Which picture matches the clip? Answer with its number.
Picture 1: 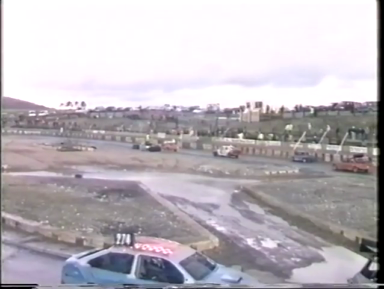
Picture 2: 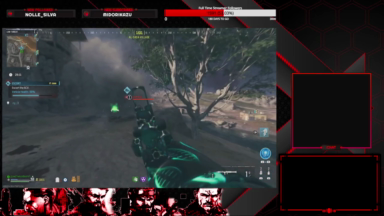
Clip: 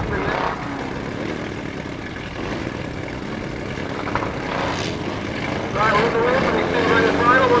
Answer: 1